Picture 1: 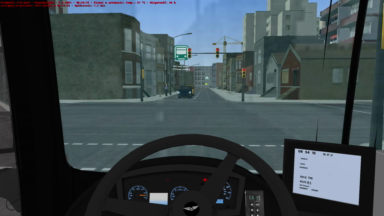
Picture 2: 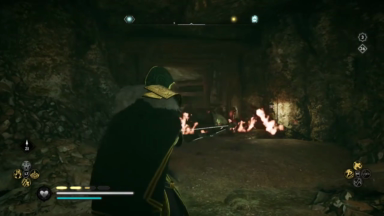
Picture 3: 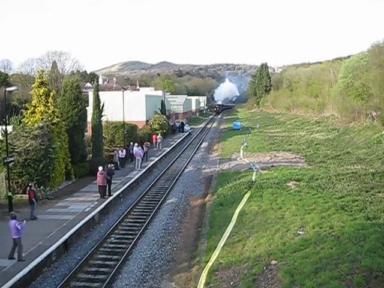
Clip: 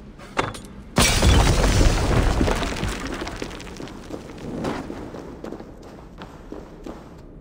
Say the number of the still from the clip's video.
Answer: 2